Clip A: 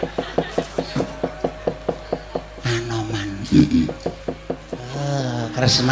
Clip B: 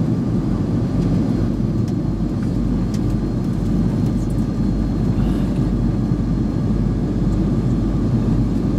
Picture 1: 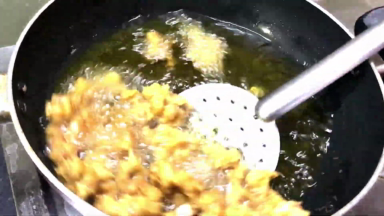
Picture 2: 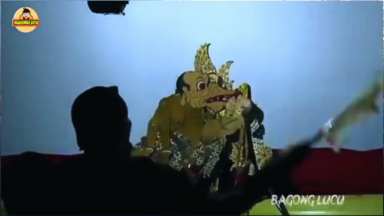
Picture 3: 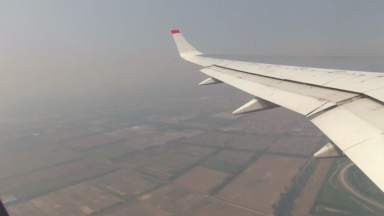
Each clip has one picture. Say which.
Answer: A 2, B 3